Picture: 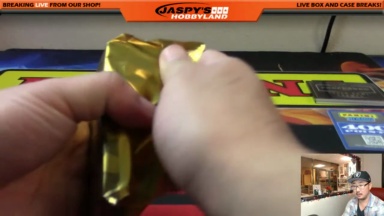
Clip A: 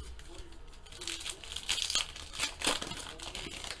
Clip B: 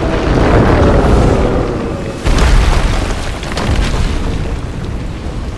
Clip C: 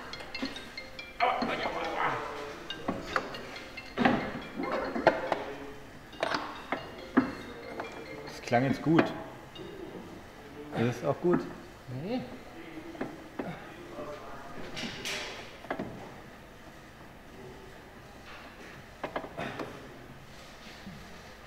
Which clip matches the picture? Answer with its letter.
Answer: A